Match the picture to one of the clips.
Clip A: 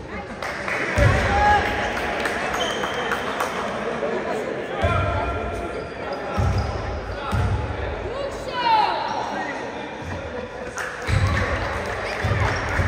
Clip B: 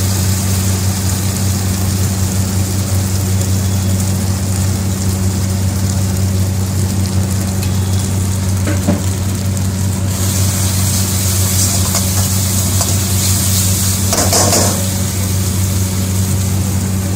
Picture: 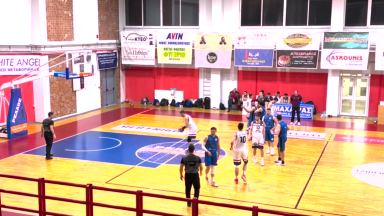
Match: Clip A